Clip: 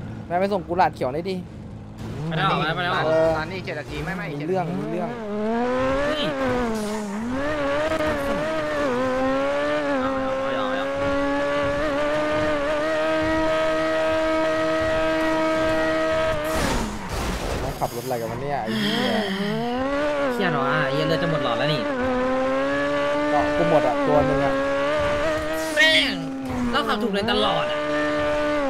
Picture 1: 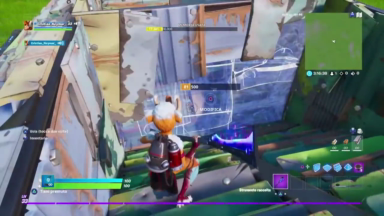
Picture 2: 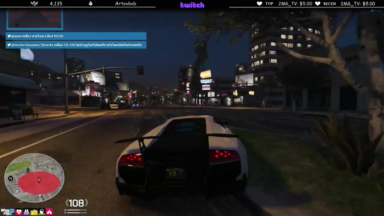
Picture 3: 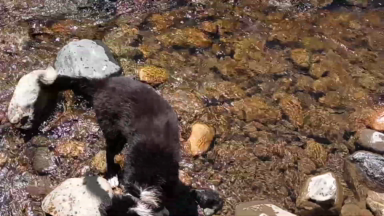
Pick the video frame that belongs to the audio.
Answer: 2